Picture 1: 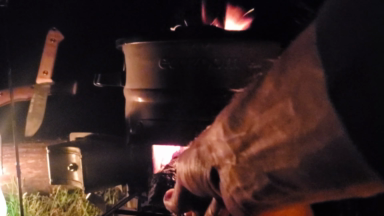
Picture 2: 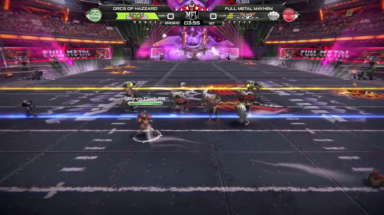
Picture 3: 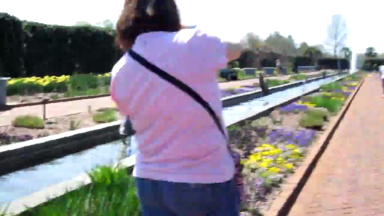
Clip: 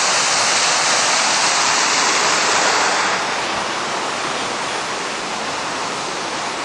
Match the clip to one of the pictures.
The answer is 3